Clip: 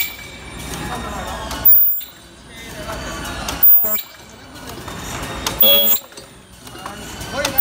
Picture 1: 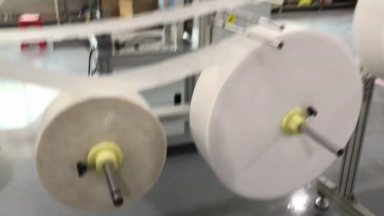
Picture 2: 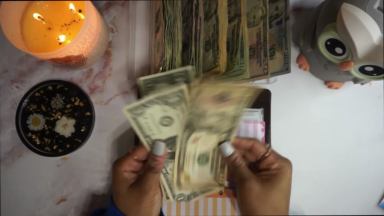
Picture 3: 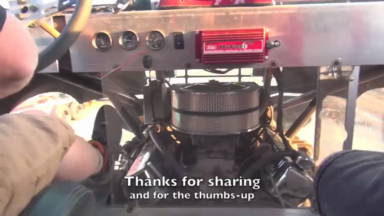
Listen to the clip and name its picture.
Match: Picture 1